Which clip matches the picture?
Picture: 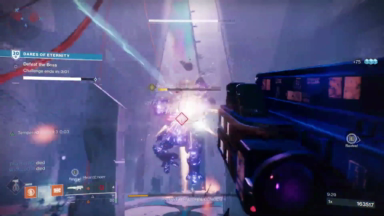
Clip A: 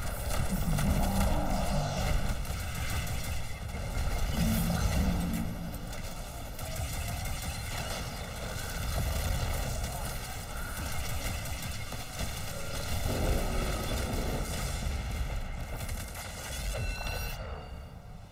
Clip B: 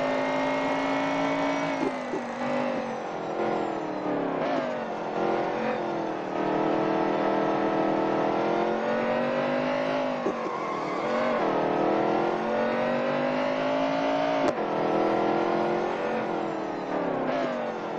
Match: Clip A